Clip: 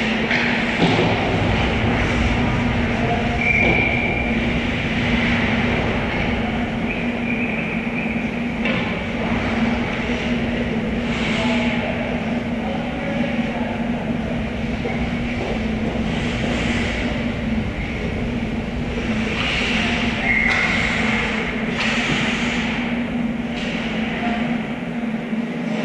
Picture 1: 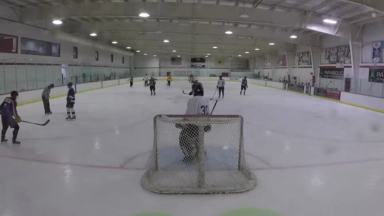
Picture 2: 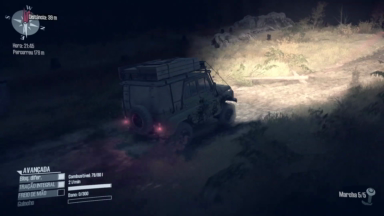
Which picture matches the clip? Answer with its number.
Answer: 1